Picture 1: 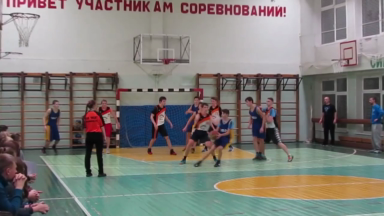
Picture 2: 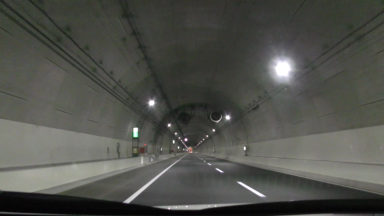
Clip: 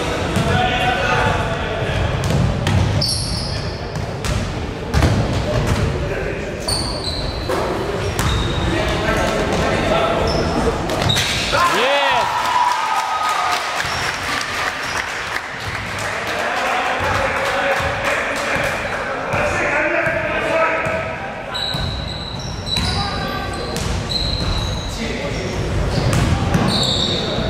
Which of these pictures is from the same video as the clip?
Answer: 1